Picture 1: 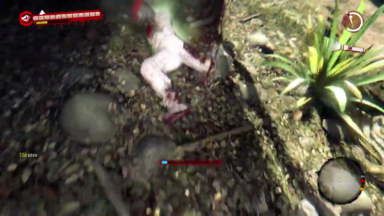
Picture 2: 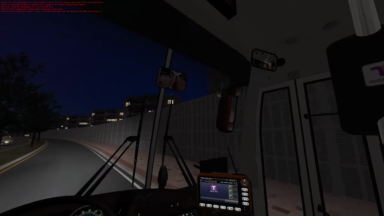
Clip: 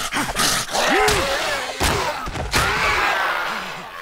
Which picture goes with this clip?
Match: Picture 1